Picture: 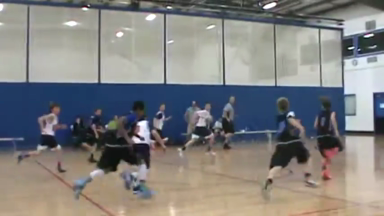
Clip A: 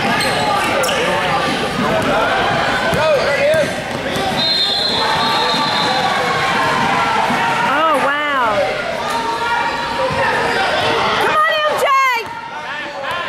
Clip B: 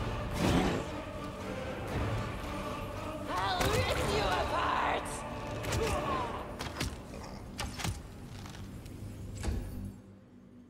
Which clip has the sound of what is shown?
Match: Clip A